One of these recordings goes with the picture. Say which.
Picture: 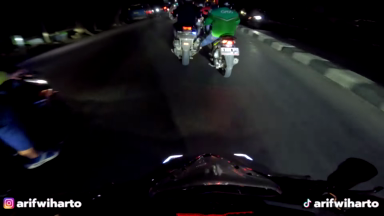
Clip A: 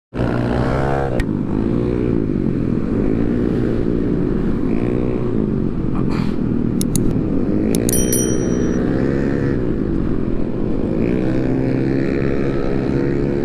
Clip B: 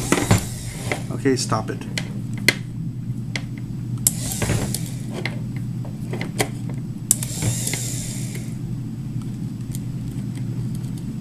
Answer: A